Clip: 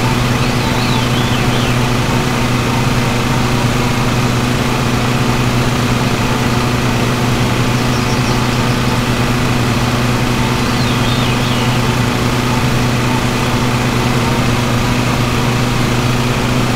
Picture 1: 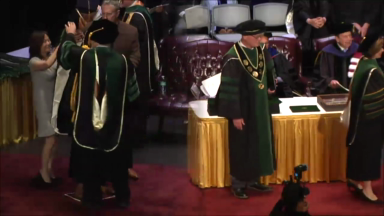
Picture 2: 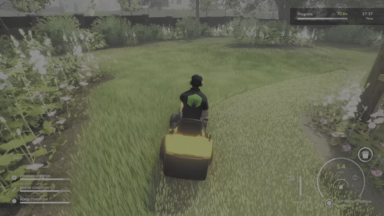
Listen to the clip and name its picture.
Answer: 2